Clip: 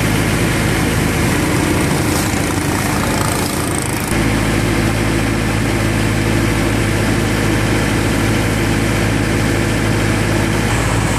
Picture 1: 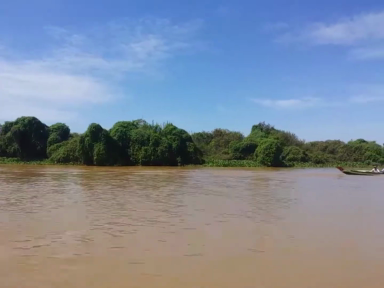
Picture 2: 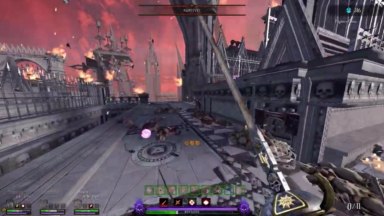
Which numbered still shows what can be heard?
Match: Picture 1